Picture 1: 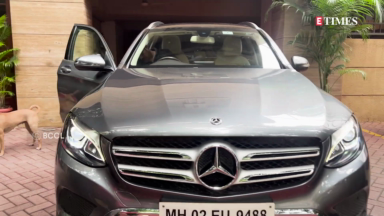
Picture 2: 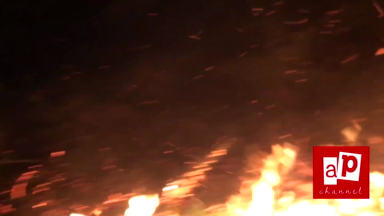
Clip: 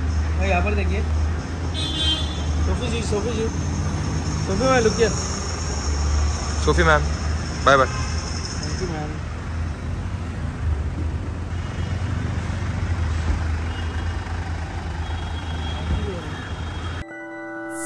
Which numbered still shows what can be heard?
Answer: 1